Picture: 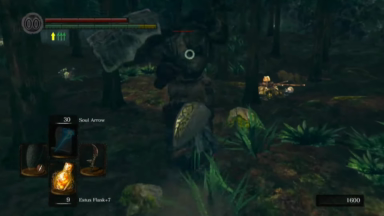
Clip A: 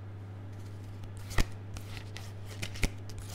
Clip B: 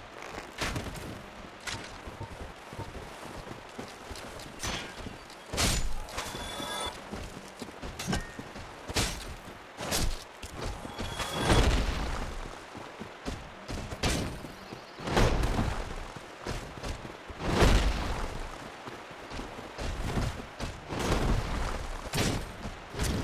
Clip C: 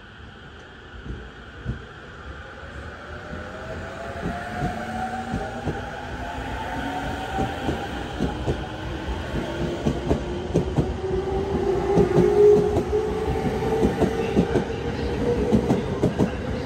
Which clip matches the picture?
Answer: B